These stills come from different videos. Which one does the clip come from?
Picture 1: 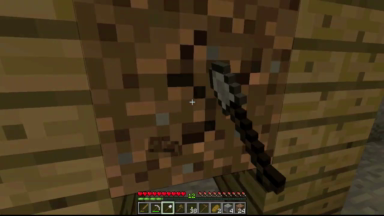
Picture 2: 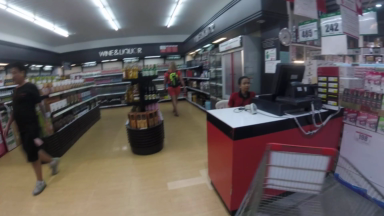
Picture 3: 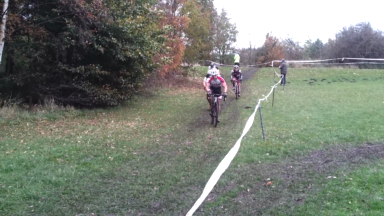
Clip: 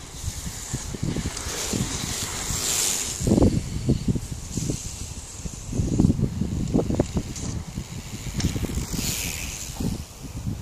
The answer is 3